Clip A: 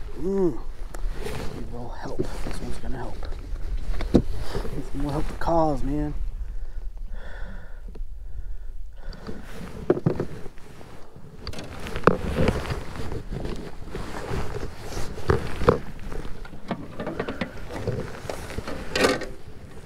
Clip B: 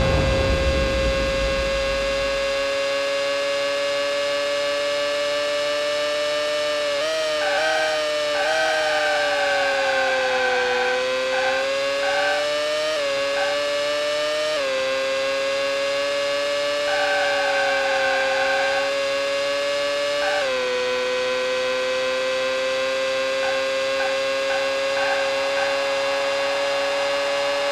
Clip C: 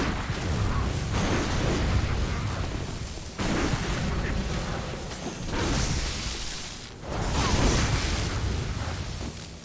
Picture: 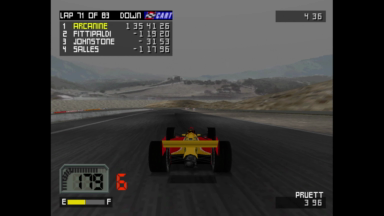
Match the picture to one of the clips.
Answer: B